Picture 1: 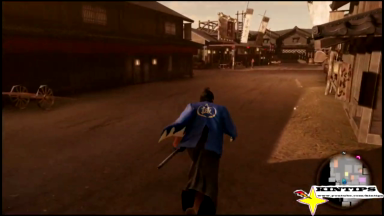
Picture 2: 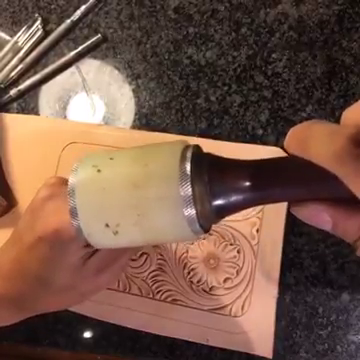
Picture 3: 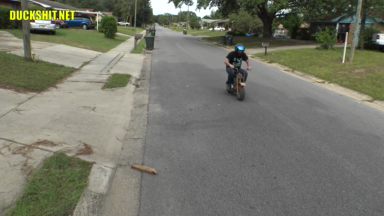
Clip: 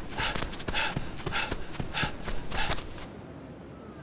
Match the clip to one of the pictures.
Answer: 1